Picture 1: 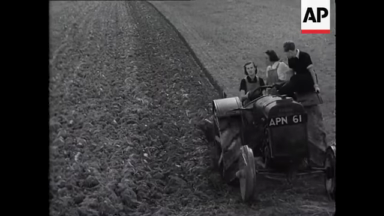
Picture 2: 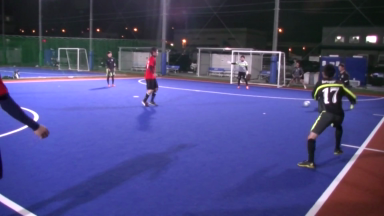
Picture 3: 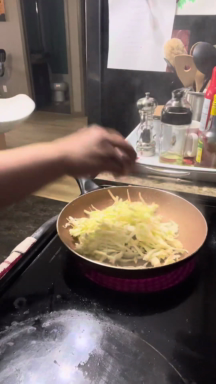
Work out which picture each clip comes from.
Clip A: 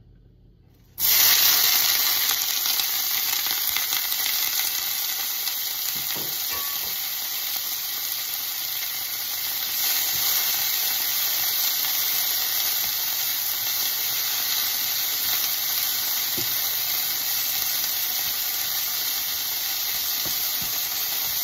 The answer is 3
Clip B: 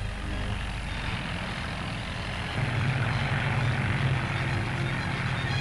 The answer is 1